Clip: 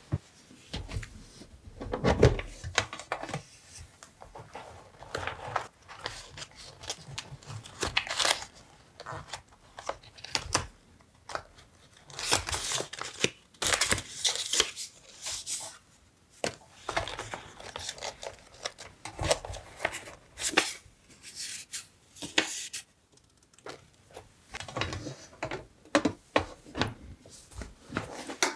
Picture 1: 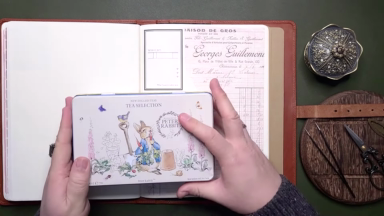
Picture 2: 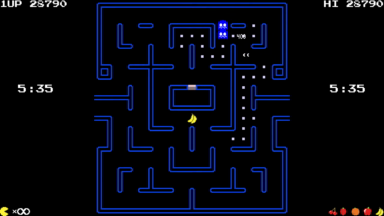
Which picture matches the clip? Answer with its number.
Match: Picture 1